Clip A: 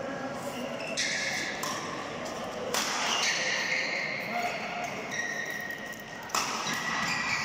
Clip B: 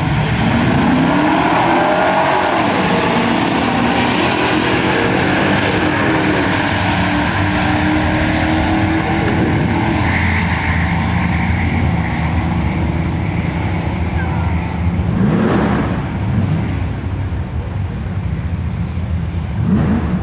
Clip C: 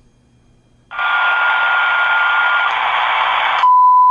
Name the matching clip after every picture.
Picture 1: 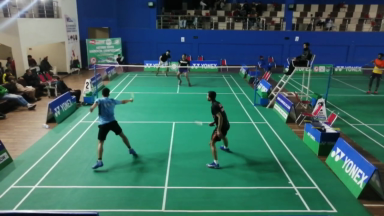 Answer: A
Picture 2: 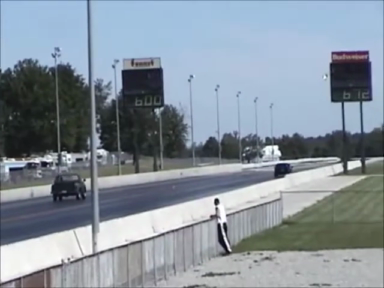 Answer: B